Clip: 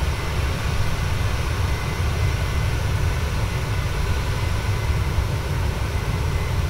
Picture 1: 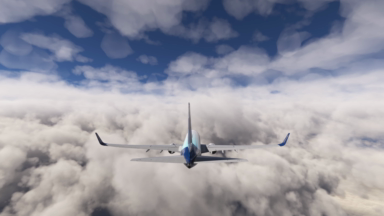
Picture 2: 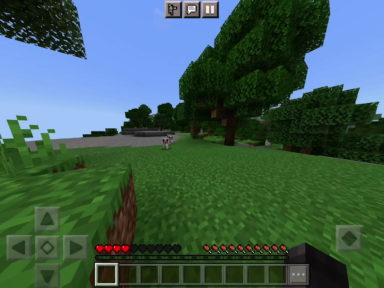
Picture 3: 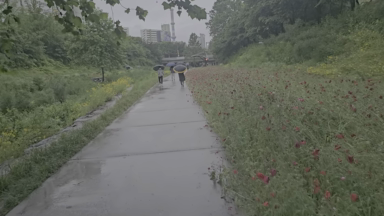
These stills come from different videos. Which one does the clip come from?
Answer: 1